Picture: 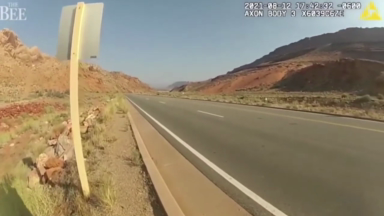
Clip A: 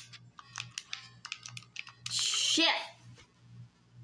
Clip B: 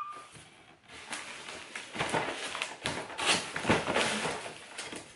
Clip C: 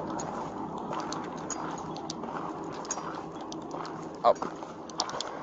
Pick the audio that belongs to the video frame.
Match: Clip C